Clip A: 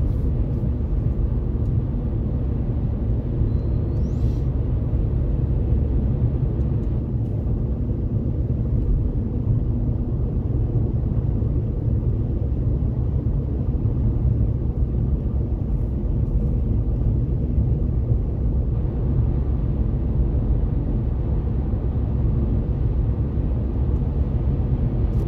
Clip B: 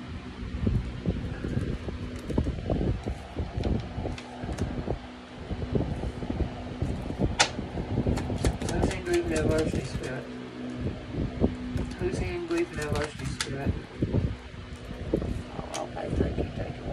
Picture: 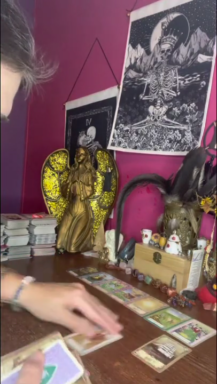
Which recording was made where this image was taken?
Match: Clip B